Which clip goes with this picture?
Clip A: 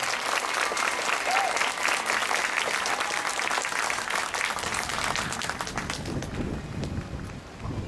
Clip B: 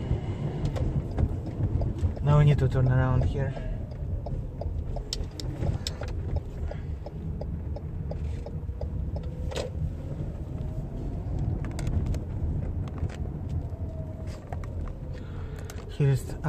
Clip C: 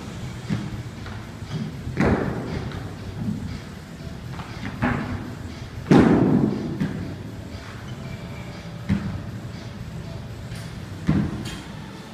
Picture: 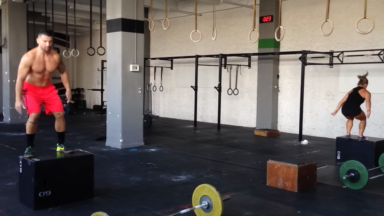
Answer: C